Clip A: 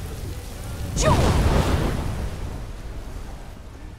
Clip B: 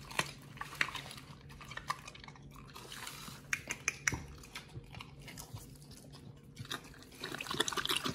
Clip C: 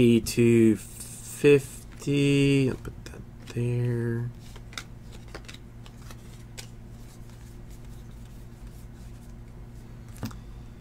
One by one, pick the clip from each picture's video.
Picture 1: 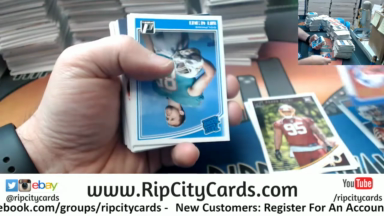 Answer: C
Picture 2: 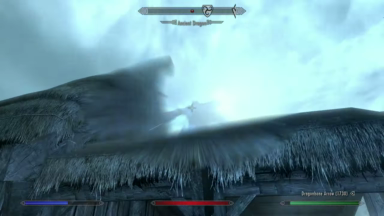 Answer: A